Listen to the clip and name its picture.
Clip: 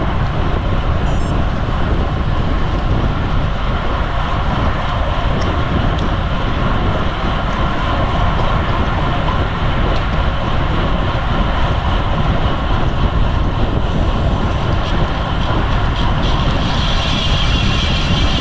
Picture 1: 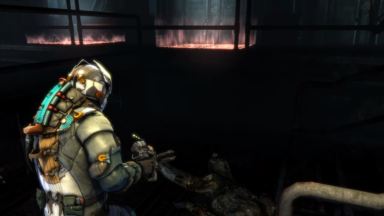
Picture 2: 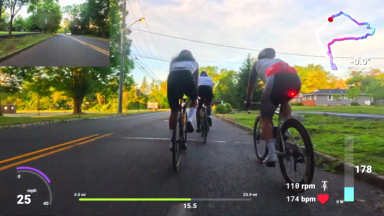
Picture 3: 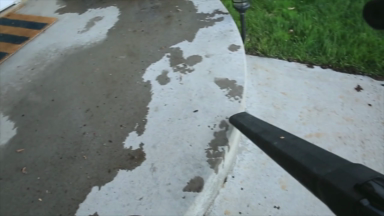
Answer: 2